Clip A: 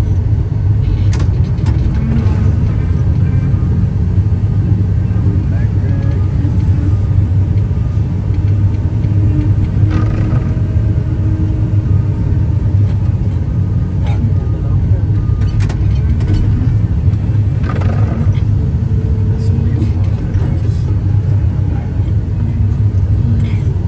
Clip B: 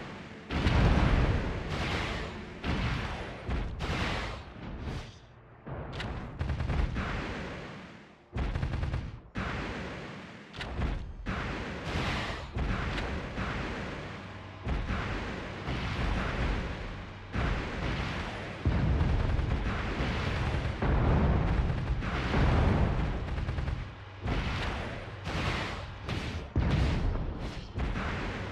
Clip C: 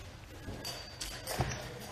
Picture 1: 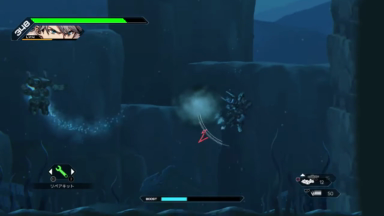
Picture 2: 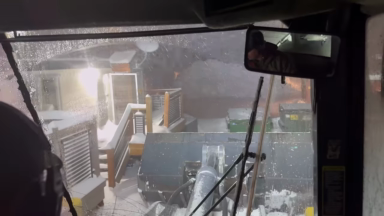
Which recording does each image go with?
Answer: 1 B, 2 A